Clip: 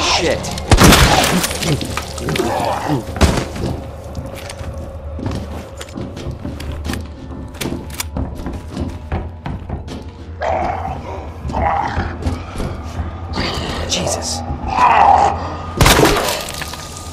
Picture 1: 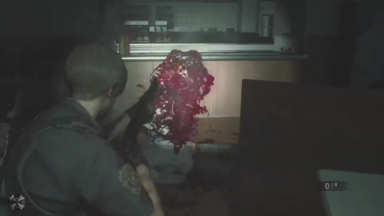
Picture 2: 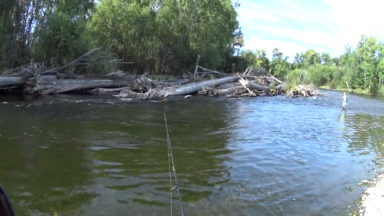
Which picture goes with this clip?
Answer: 1